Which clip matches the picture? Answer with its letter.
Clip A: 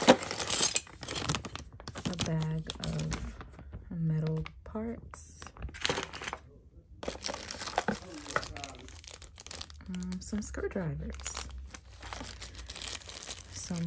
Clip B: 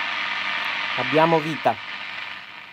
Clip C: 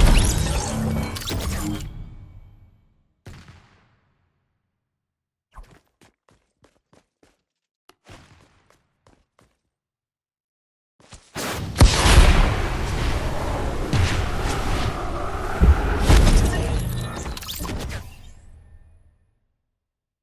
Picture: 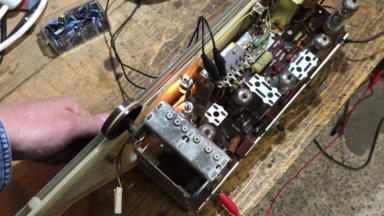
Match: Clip B